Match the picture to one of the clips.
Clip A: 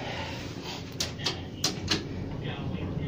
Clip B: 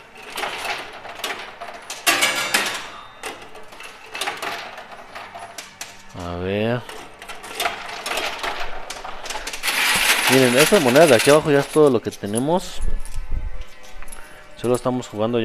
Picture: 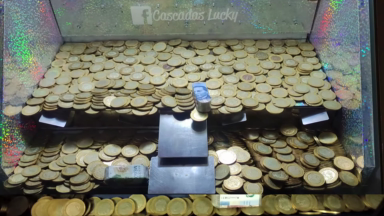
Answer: B